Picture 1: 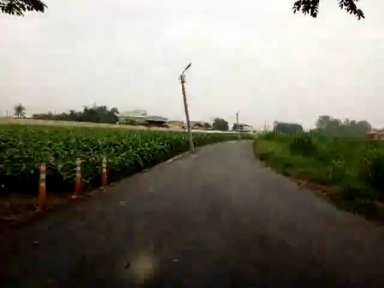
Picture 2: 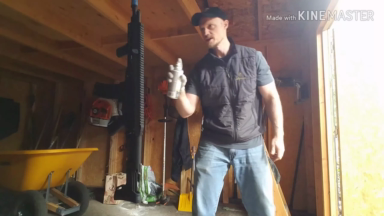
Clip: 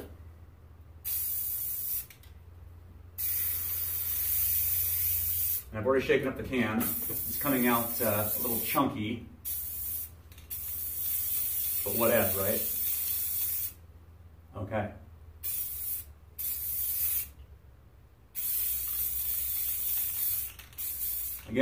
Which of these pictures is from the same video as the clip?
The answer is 2